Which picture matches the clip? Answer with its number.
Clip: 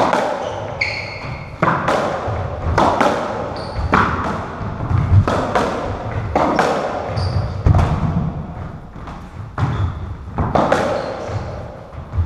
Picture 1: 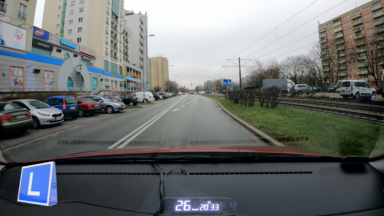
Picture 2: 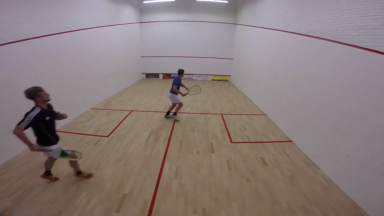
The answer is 2